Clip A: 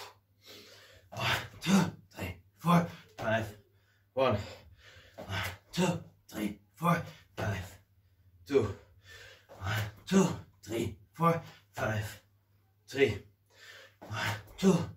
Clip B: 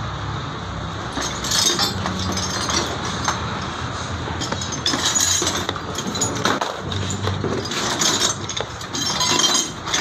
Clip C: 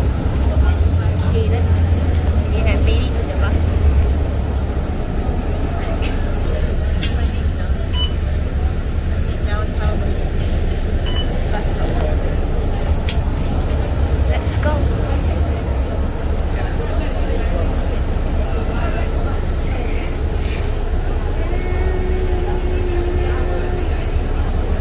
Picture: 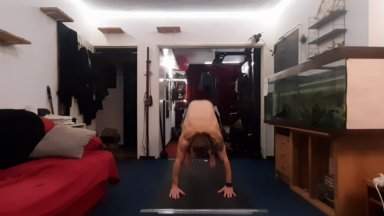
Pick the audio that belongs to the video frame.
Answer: A